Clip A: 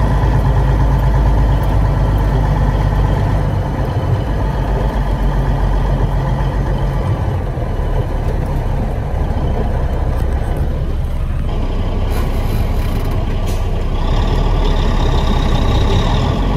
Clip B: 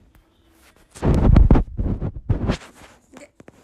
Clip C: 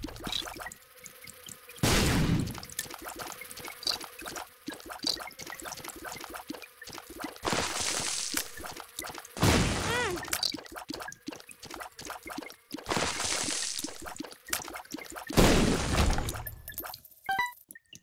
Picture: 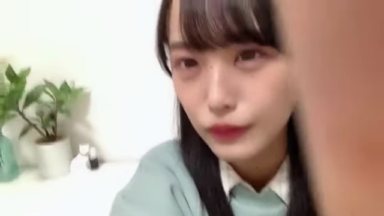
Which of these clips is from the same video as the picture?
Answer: B